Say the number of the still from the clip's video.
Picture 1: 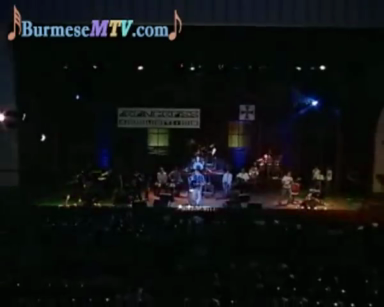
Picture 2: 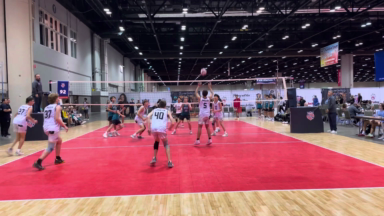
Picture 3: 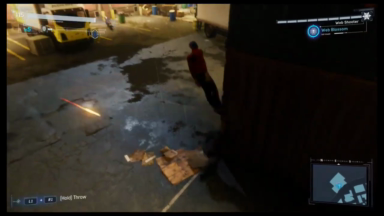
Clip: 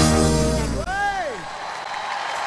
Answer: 1